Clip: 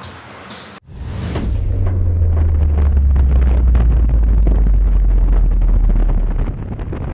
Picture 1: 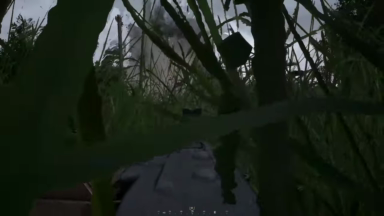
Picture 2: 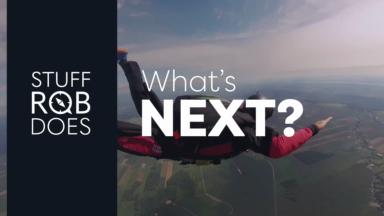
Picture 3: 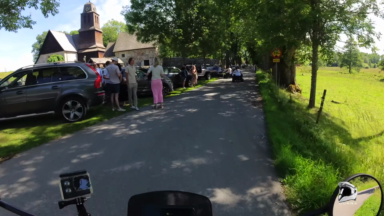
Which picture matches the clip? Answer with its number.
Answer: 2